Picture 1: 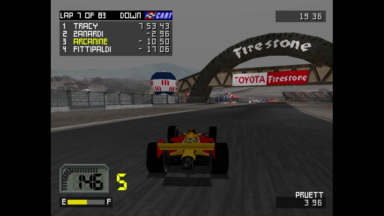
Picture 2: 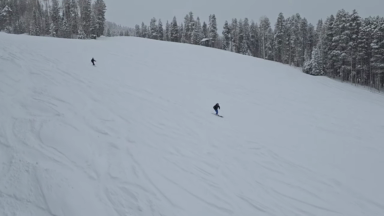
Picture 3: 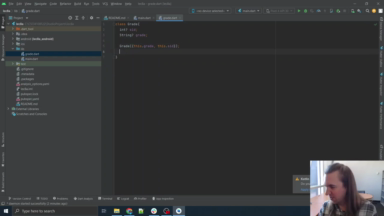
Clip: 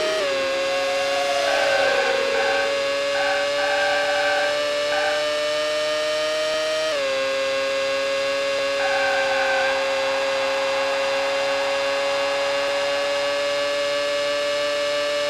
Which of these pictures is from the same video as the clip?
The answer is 1